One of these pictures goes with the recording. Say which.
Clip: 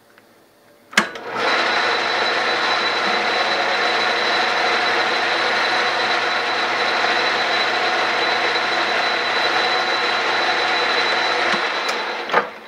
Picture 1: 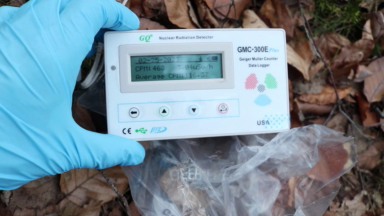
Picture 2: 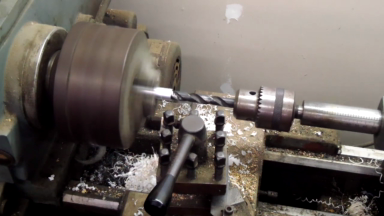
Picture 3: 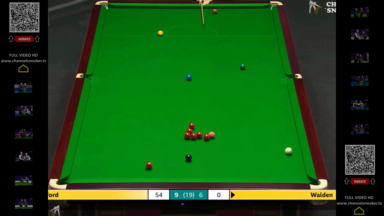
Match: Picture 2